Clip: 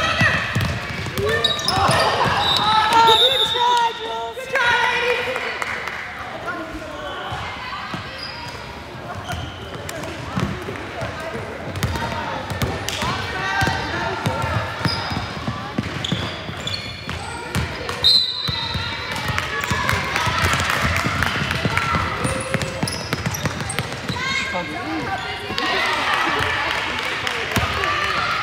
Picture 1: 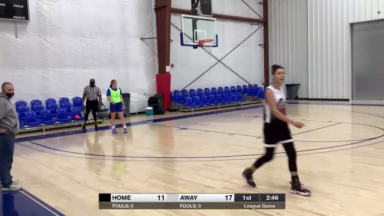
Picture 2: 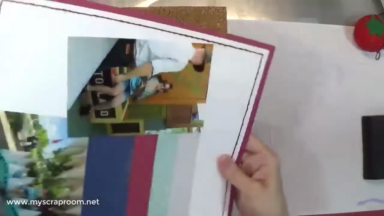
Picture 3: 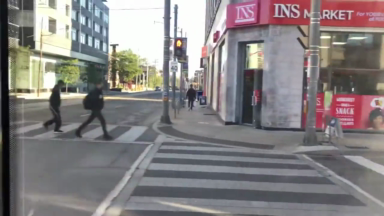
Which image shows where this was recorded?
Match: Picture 1